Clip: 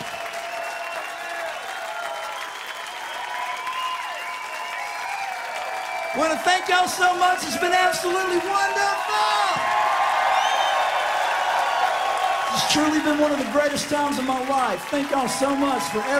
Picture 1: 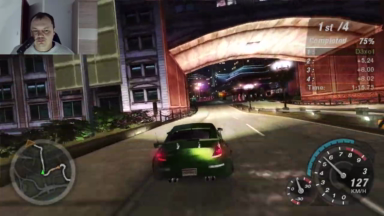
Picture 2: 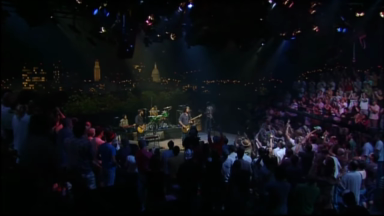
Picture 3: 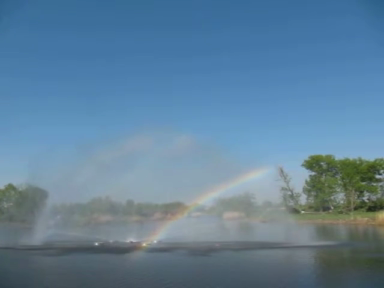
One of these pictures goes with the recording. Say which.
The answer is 2